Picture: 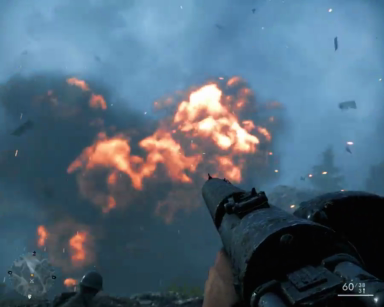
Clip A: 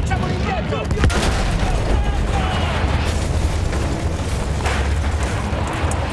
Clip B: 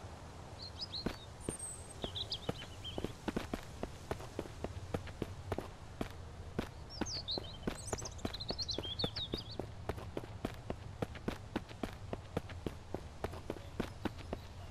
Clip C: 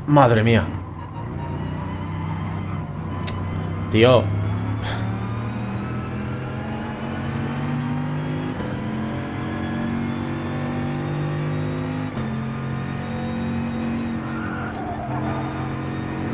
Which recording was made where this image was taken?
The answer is A